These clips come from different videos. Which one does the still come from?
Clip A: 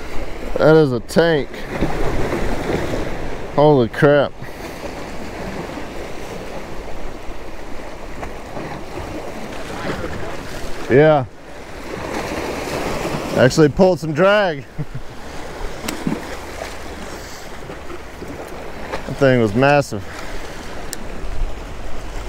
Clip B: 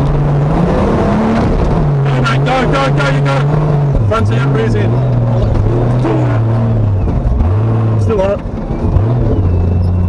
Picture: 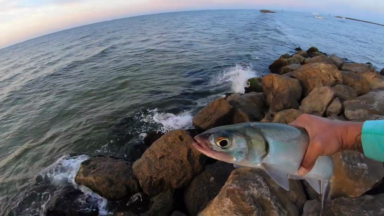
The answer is A